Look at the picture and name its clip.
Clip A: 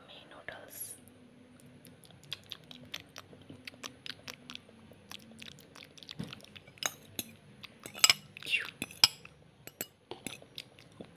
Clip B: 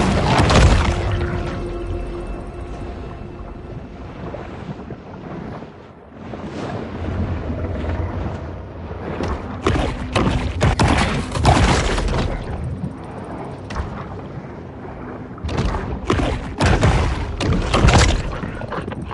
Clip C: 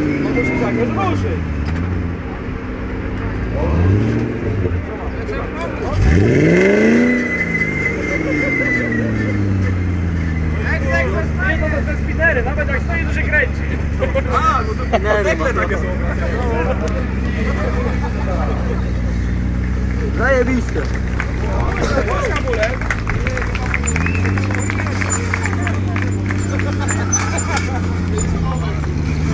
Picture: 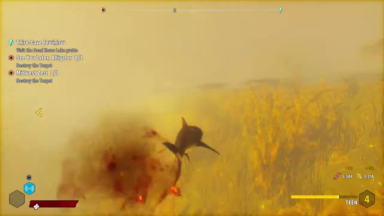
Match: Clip B